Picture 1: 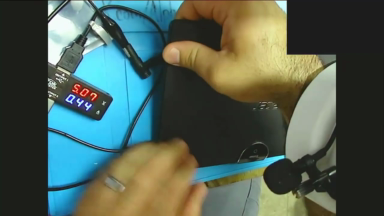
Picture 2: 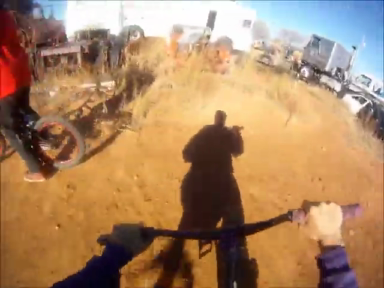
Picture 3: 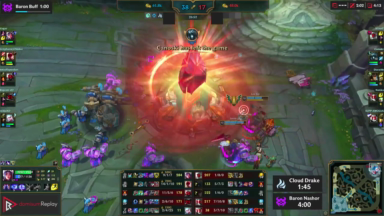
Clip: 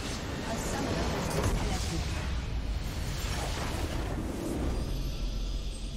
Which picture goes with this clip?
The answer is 3